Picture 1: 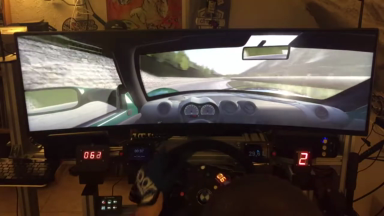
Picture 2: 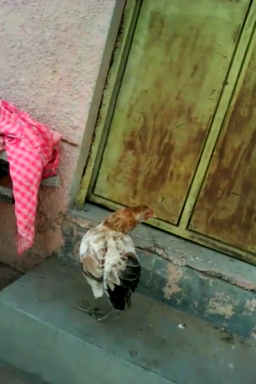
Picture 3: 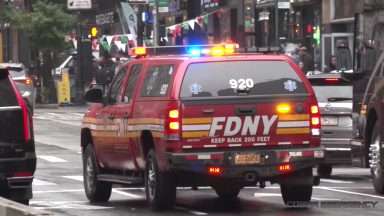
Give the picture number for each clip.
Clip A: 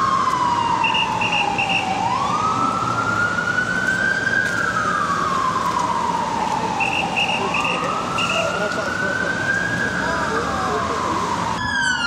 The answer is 3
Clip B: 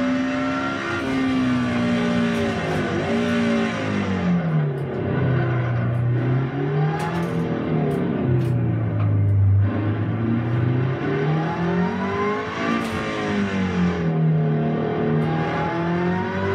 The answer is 1